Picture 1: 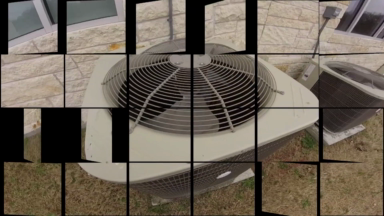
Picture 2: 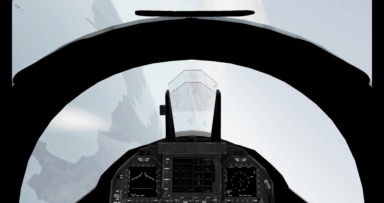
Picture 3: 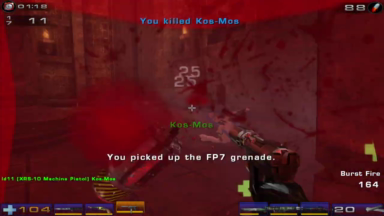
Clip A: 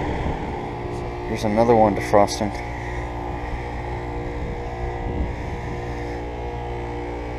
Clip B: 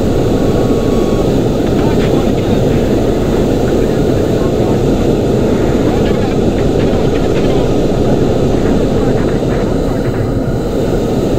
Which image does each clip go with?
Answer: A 1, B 2